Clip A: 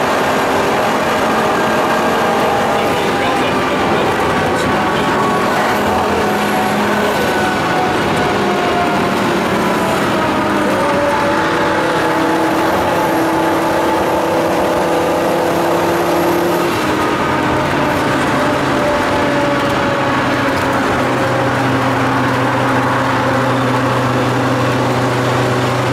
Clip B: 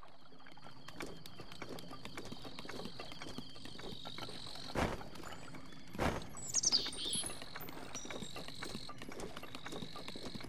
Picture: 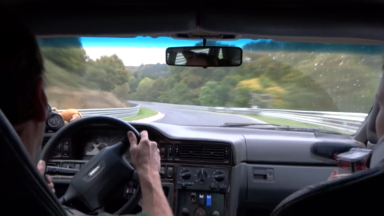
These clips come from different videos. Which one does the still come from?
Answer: A